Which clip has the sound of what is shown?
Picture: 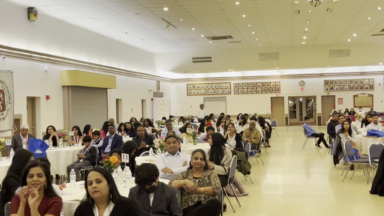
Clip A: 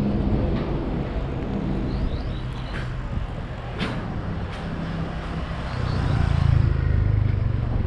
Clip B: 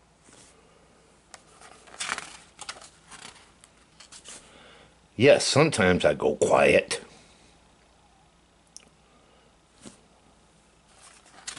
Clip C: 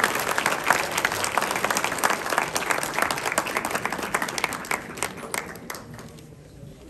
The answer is C